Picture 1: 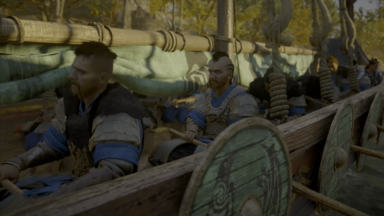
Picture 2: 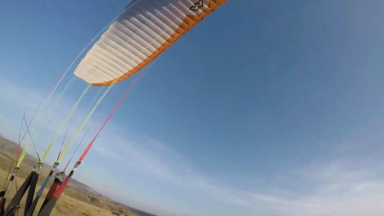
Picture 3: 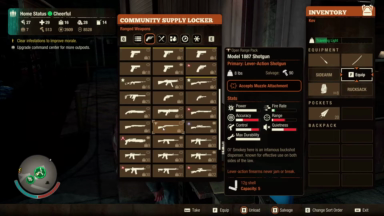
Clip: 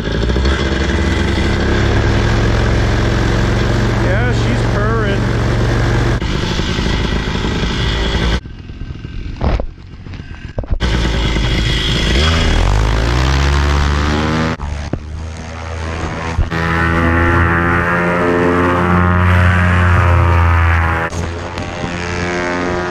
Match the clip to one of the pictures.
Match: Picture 2